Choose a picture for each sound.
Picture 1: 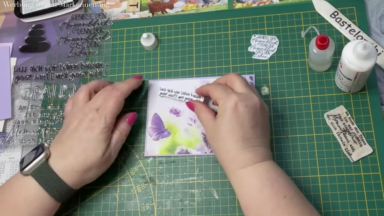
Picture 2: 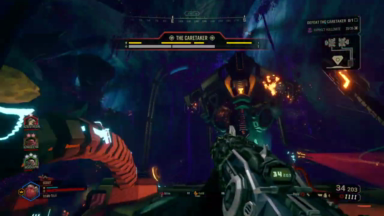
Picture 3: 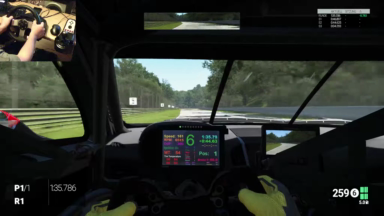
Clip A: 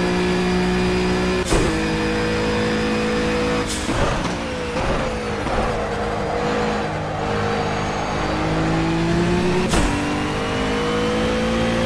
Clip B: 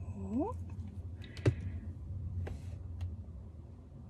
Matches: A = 3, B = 1